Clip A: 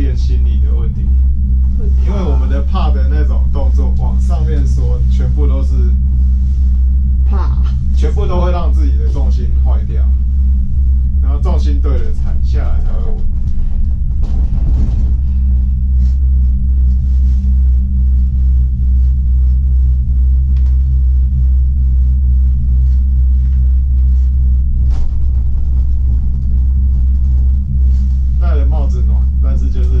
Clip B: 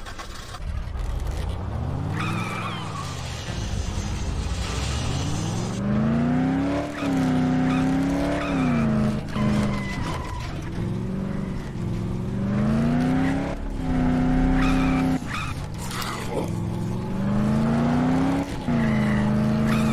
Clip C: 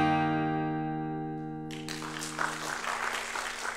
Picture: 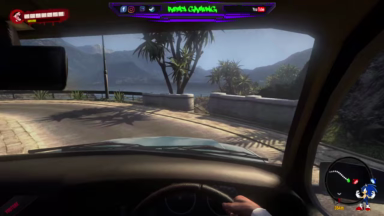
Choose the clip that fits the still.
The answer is B